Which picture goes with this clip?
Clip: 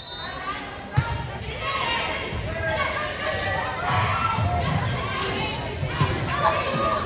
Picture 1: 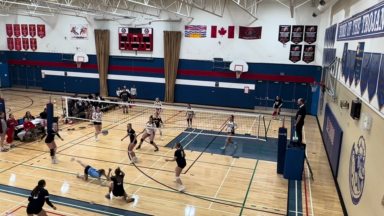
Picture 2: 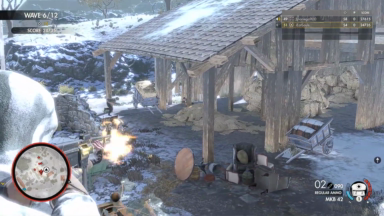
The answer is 1